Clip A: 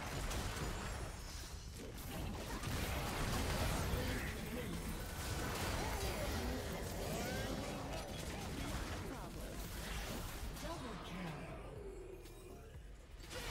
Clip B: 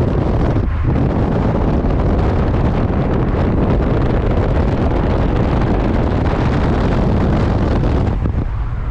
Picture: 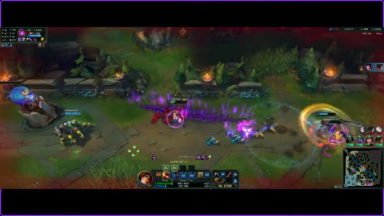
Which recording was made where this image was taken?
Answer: A